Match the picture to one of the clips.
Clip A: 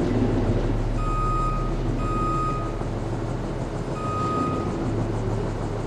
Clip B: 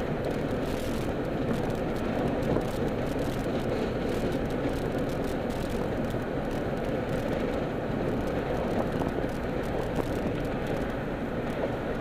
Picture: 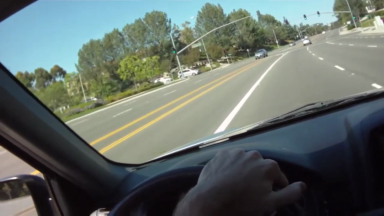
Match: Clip B